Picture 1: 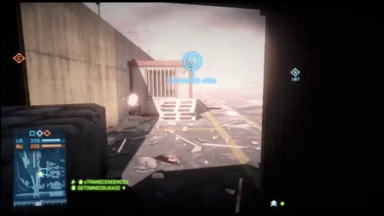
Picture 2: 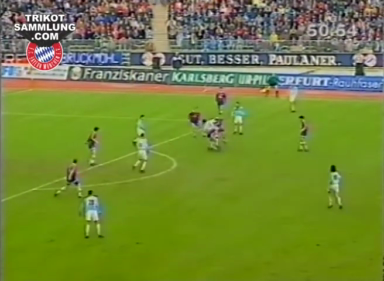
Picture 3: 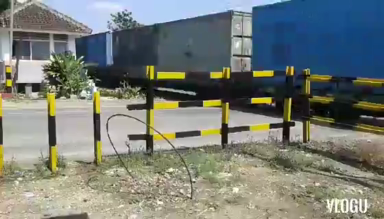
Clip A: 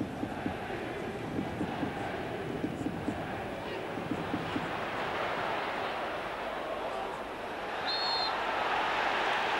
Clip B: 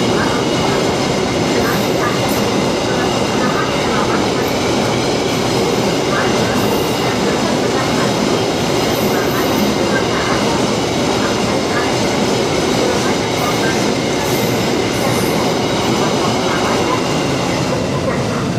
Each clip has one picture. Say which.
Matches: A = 2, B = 3